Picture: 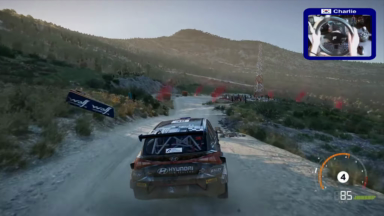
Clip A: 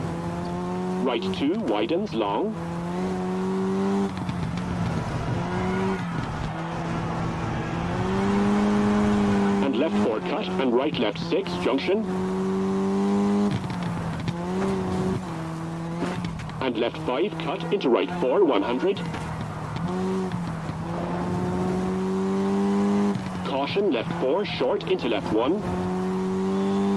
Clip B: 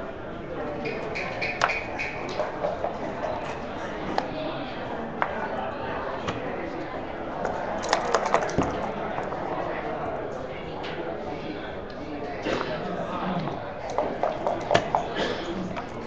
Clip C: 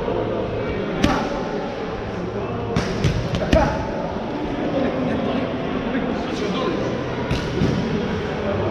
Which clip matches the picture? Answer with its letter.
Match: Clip A